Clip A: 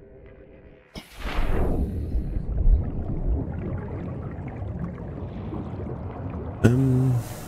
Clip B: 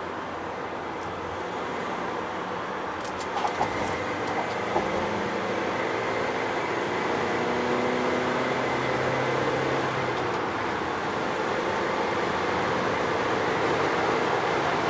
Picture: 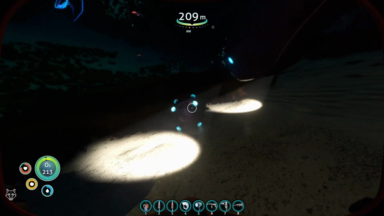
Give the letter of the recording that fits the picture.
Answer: A